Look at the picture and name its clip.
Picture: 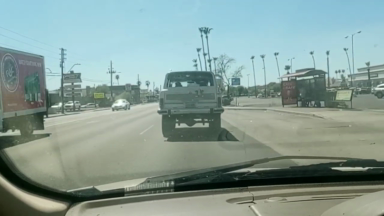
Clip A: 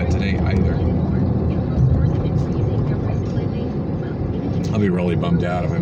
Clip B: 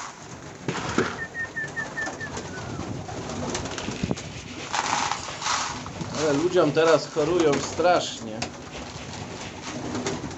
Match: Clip A